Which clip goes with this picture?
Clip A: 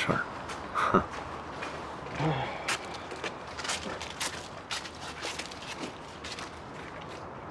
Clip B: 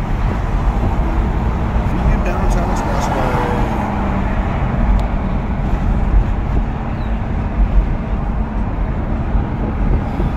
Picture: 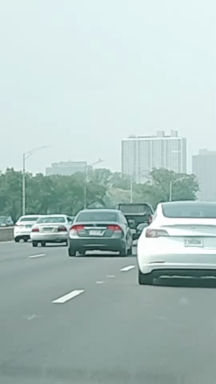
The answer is B